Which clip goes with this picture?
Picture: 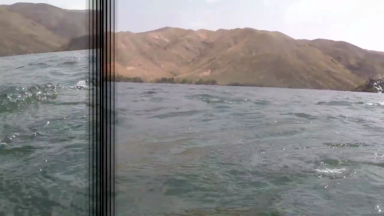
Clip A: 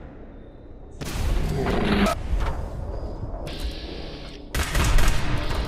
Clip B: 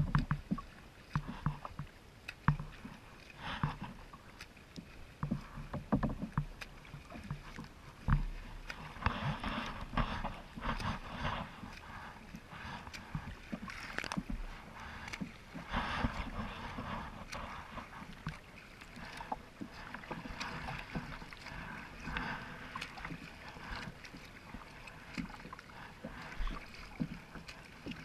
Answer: B